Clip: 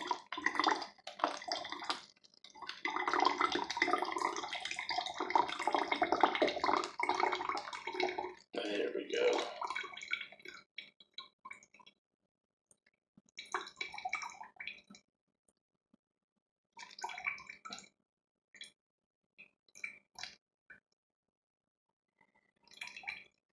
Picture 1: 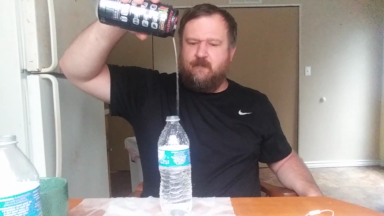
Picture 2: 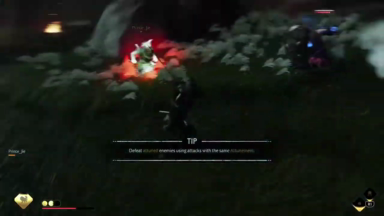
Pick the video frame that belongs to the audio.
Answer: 1